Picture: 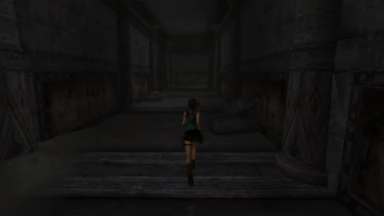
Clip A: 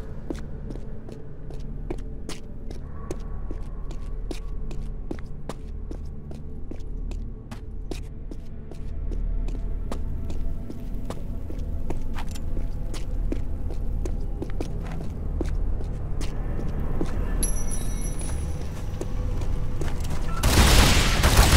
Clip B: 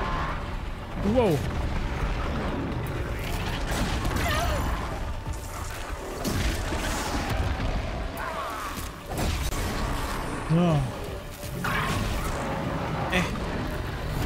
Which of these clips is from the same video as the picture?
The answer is A